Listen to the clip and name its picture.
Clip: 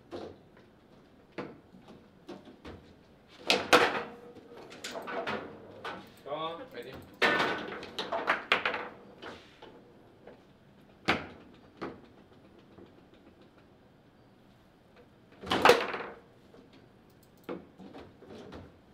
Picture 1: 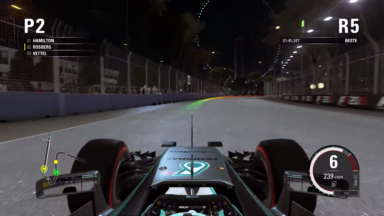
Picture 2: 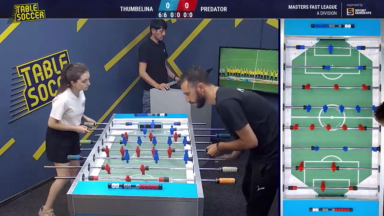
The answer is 2